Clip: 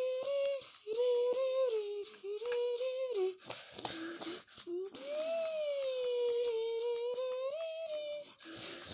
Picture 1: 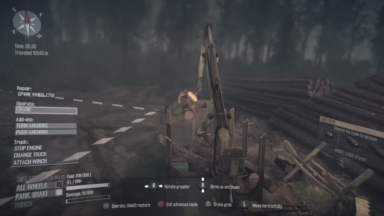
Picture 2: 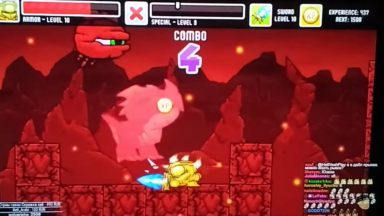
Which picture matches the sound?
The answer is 2